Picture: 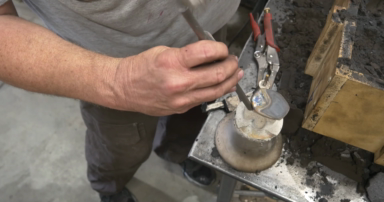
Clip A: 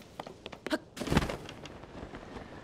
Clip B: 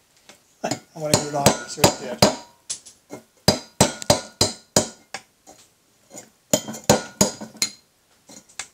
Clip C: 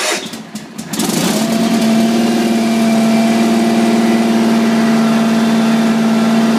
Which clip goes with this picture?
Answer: B